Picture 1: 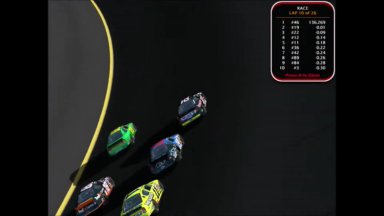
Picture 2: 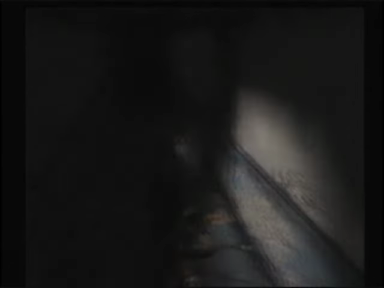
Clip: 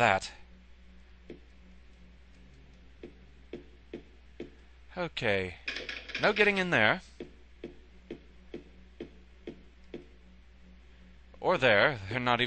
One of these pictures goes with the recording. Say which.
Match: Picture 2